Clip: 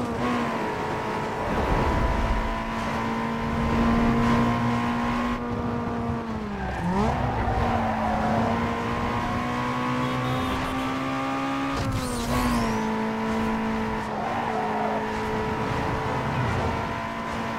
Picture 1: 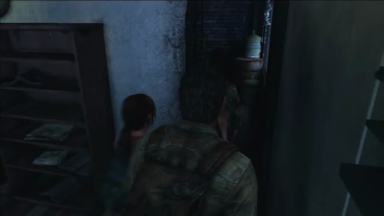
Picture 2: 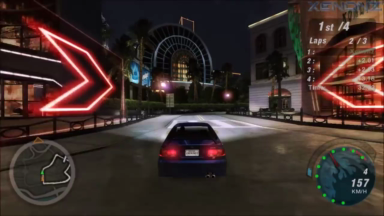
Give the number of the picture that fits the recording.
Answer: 2